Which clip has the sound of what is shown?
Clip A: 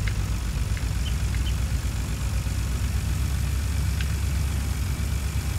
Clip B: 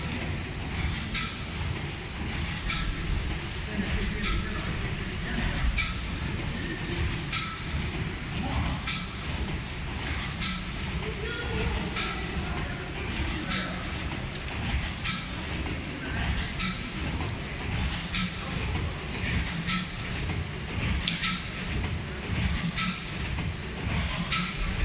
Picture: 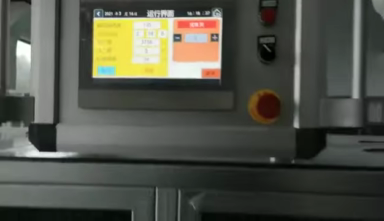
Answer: B